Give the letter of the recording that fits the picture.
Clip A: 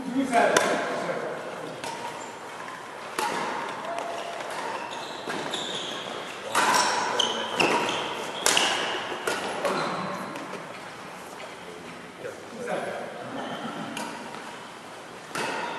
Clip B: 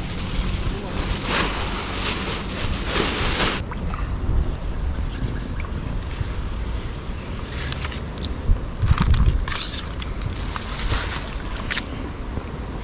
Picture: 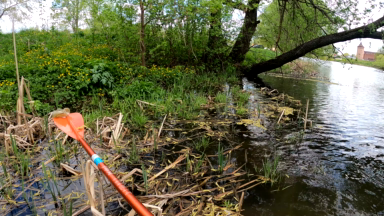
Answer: B